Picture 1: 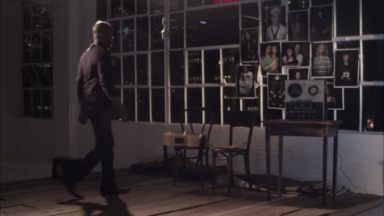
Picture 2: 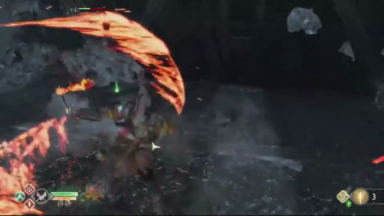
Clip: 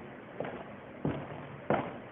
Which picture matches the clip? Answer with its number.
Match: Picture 1